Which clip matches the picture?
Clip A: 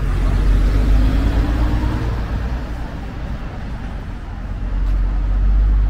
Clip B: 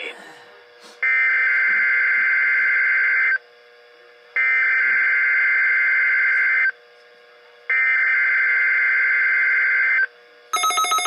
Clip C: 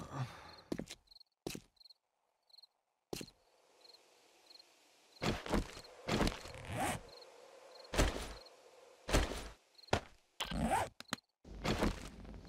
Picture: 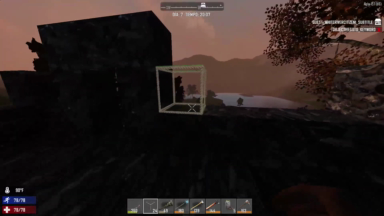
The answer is C